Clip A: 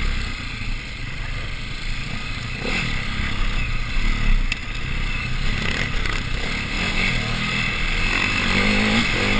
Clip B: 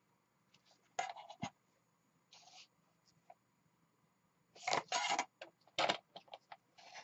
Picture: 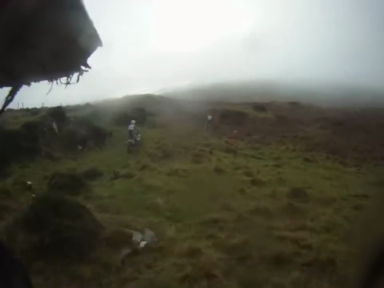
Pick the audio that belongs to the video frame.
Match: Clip A